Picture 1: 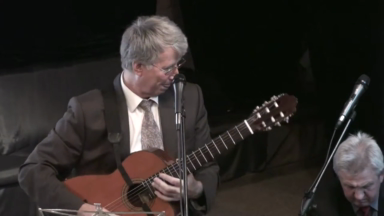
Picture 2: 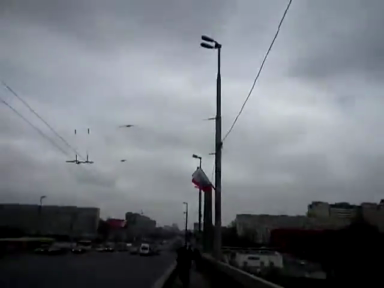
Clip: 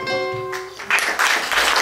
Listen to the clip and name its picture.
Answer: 1